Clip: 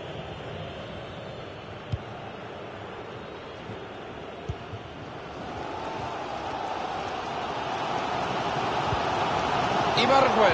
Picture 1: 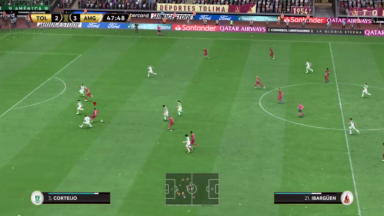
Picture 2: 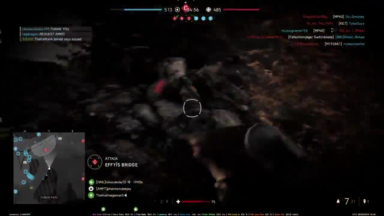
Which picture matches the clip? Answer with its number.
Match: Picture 1